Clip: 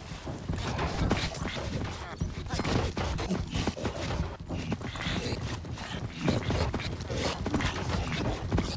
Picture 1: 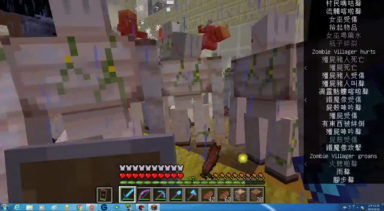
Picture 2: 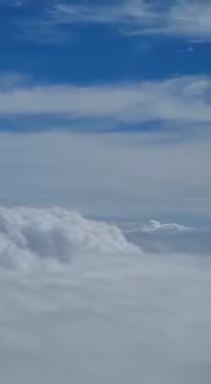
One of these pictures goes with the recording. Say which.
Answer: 1